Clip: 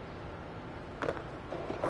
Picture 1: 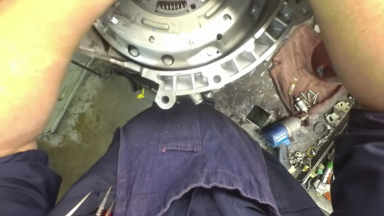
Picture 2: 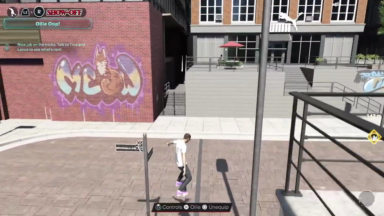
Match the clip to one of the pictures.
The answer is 2